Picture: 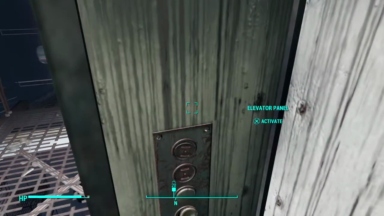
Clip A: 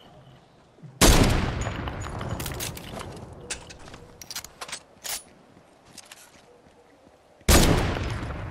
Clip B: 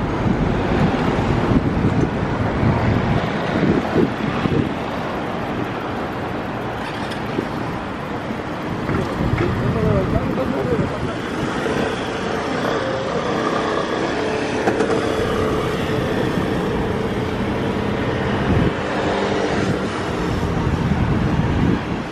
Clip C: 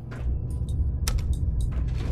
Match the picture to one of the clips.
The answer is C